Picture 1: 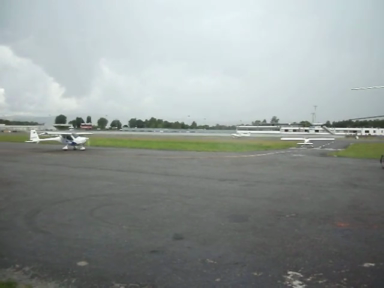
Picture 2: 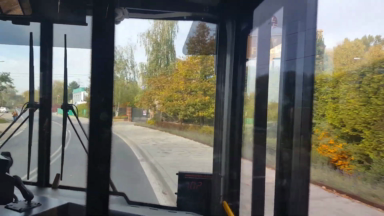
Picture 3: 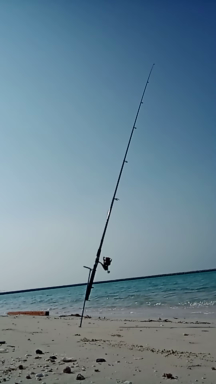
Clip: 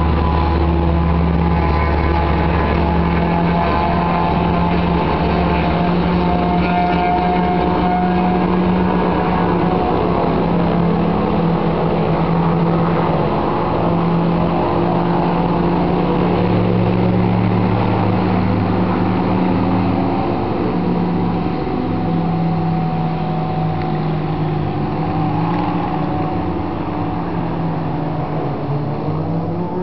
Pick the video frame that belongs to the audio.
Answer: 1